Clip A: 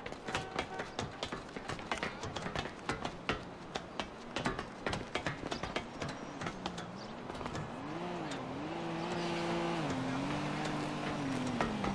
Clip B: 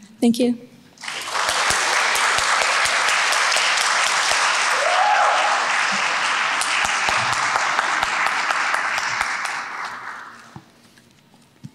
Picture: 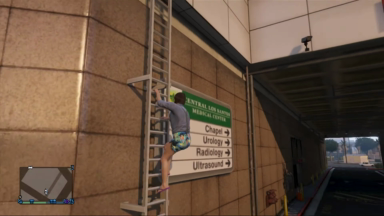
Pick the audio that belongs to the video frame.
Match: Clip A